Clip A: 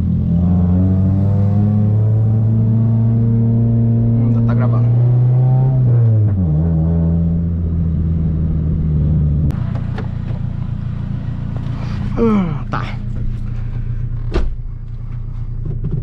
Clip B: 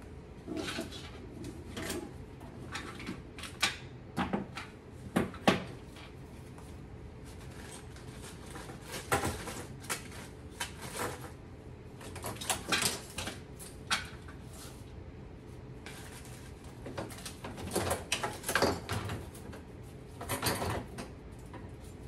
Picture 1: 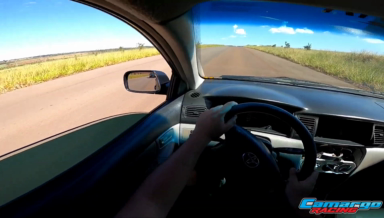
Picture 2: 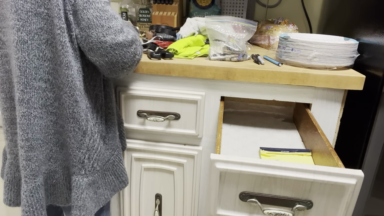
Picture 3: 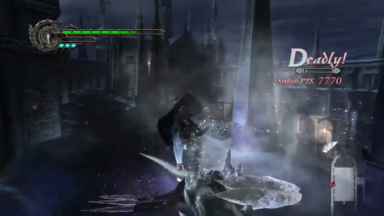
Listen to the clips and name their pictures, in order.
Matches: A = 1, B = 2